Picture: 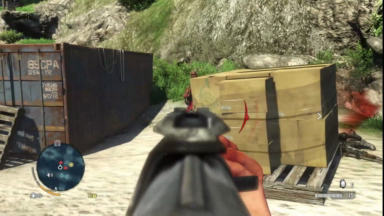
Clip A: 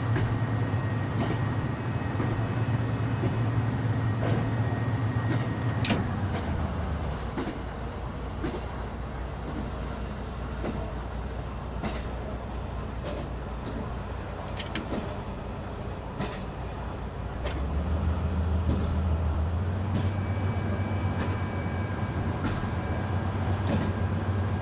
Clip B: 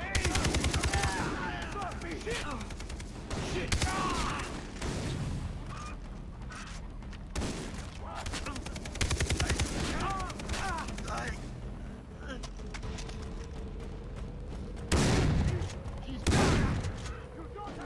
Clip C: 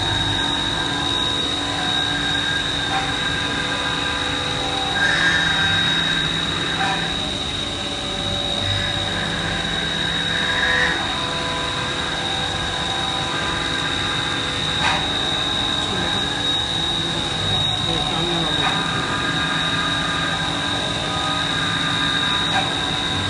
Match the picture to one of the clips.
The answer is B